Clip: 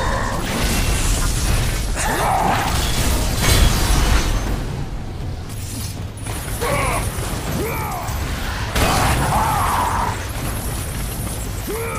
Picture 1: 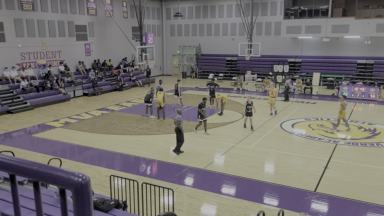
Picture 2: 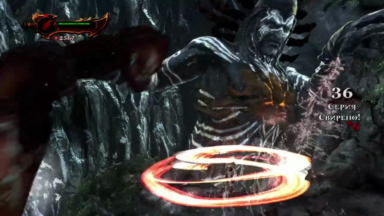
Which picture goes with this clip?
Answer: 2